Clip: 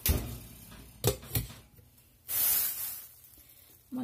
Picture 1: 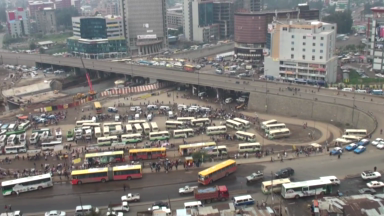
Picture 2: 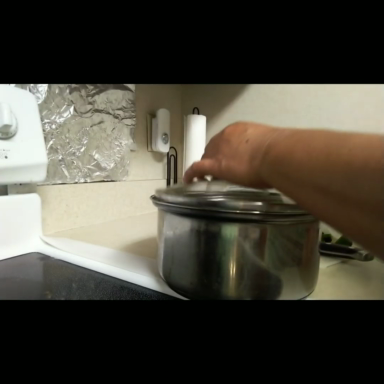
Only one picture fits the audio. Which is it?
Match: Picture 2